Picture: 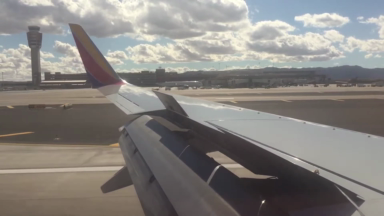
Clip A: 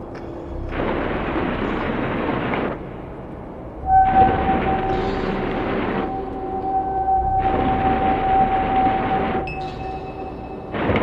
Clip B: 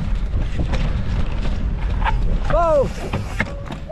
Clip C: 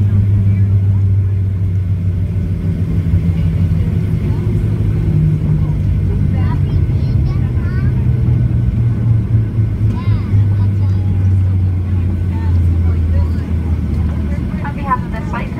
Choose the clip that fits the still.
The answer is C